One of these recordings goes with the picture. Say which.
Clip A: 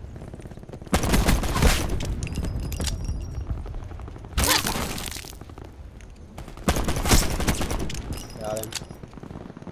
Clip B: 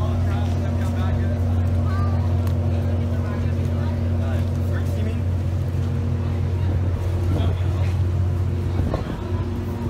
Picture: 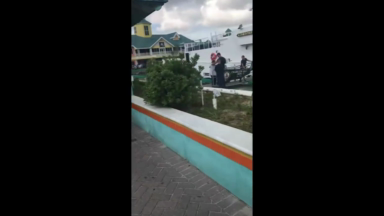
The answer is B